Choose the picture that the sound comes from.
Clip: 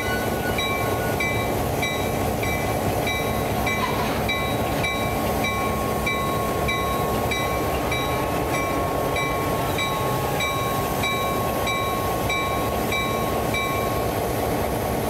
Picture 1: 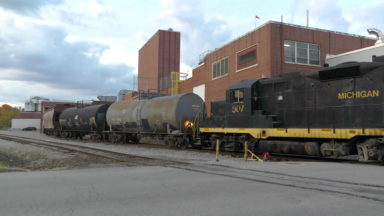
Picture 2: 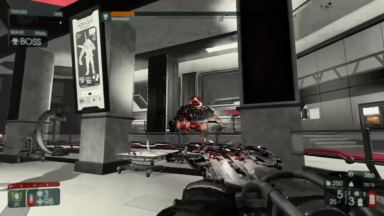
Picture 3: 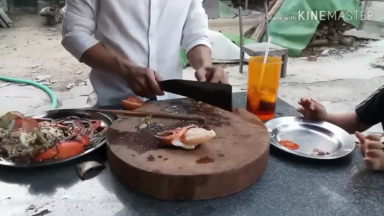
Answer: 1